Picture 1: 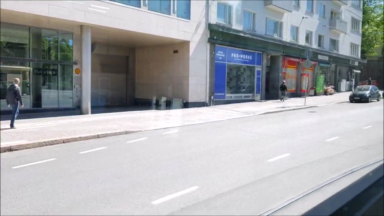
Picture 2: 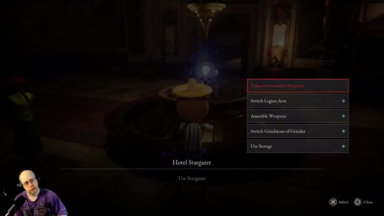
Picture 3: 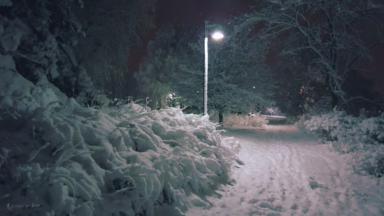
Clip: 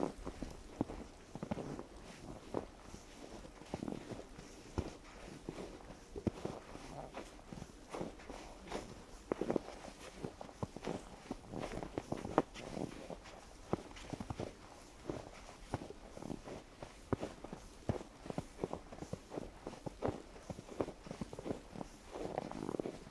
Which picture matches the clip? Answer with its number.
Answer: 3